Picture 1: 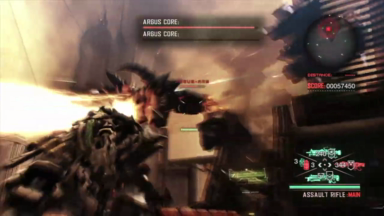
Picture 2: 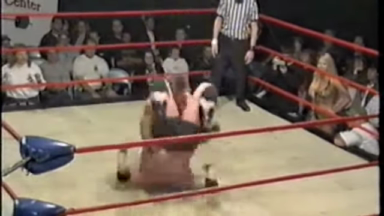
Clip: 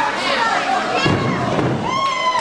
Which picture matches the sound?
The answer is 2